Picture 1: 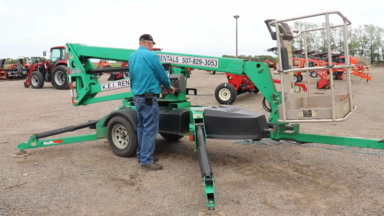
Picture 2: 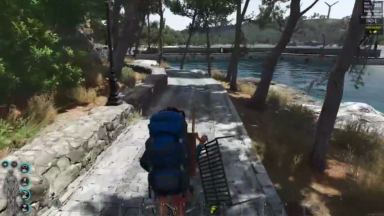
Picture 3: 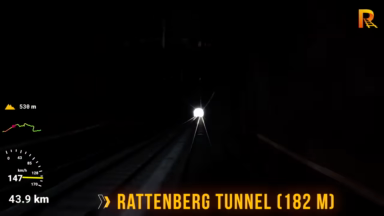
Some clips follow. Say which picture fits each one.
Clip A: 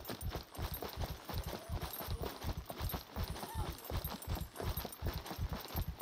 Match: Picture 2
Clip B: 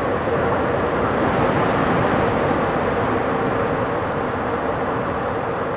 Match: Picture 3